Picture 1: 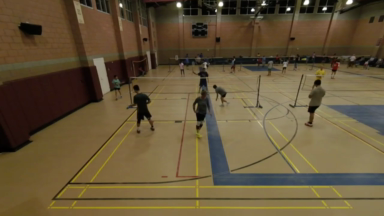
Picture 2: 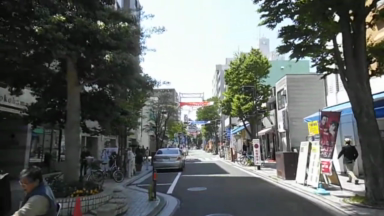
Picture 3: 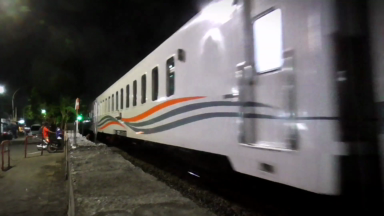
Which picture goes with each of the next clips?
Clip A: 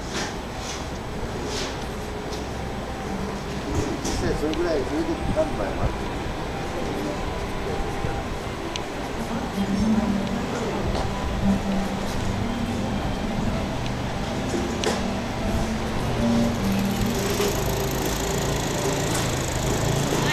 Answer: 2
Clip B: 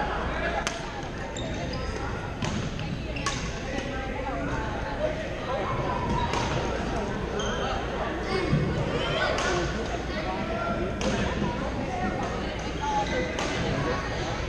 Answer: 1